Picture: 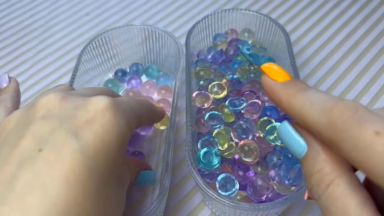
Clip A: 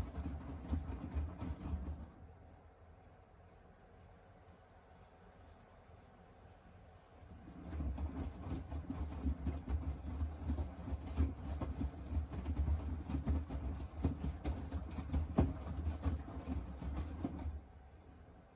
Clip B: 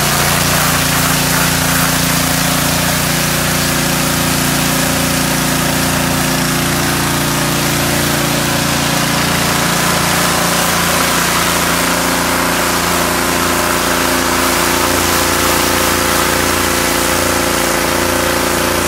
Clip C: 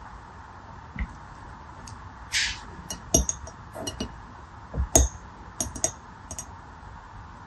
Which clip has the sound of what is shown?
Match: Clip C